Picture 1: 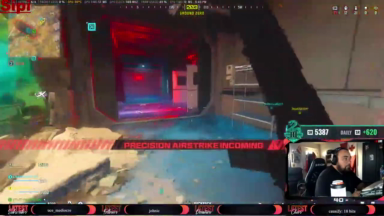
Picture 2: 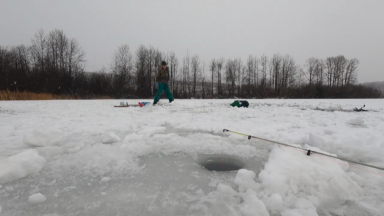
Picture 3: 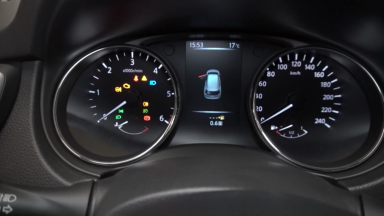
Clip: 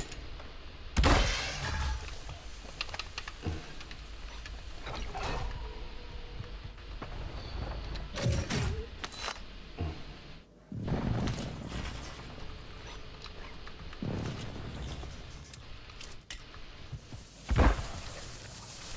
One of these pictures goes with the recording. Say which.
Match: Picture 1